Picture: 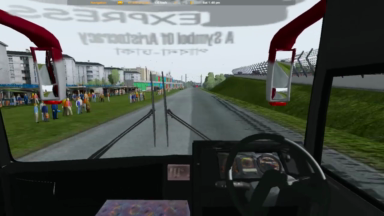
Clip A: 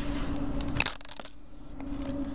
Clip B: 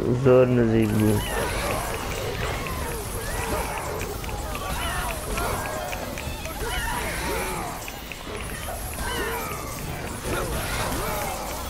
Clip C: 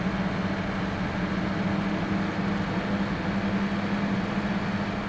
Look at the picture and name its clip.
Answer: C